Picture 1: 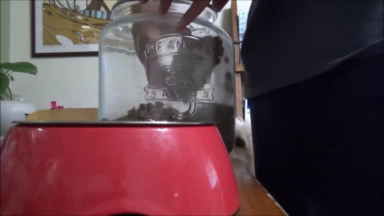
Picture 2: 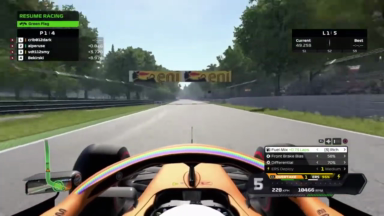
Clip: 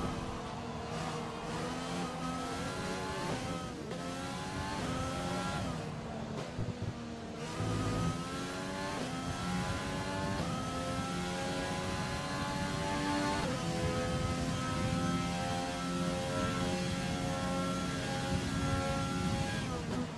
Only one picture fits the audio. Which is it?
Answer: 2